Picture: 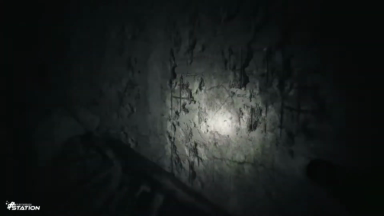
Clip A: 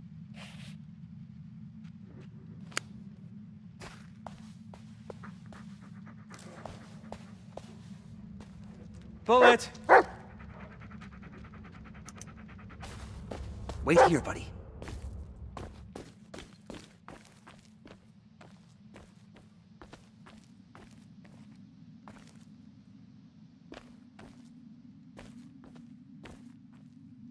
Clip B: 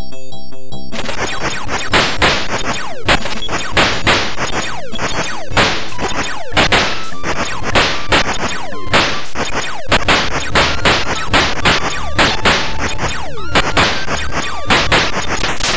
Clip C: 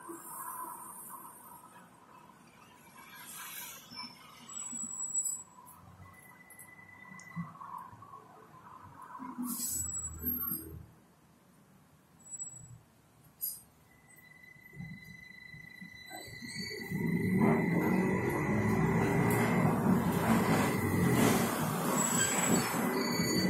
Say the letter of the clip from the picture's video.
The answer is A